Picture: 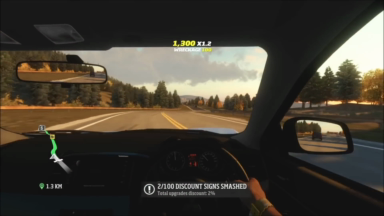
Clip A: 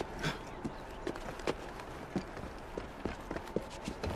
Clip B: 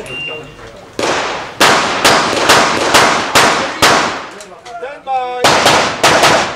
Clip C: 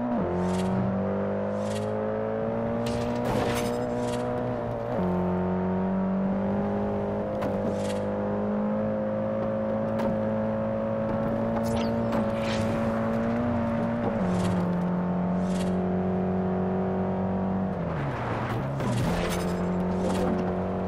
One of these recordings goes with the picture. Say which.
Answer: C